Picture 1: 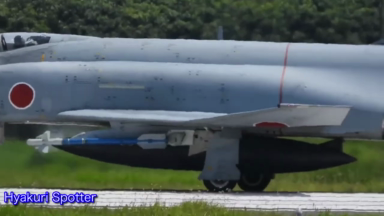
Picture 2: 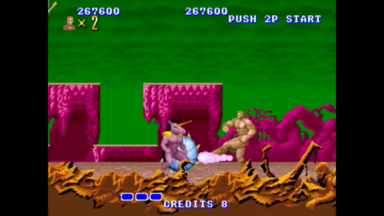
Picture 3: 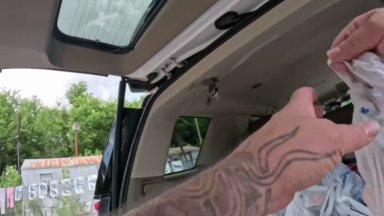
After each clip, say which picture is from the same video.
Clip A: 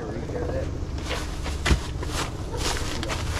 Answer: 3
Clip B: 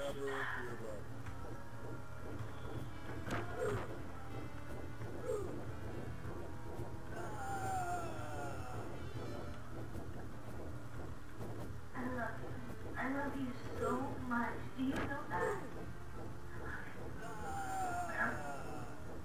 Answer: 2